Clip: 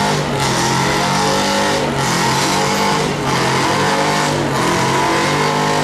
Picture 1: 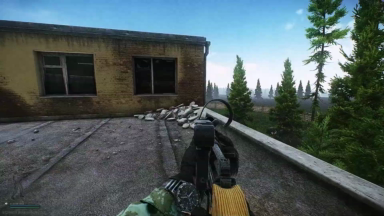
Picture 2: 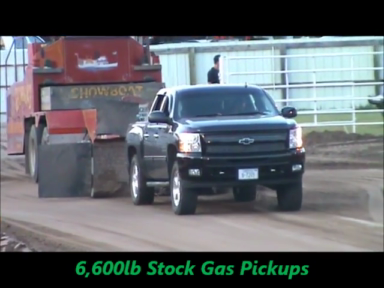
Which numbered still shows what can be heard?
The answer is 2